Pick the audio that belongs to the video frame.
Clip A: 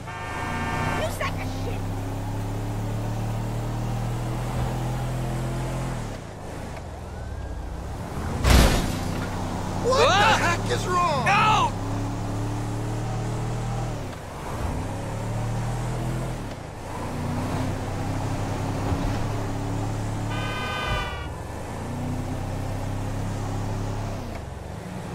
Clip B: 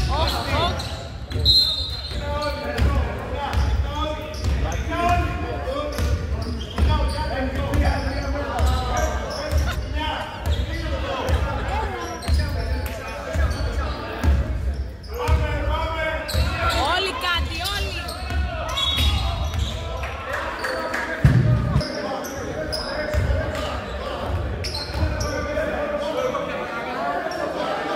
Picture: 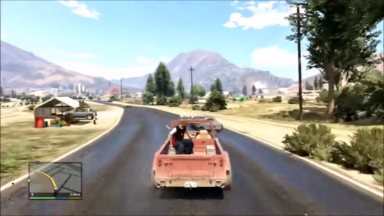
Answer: A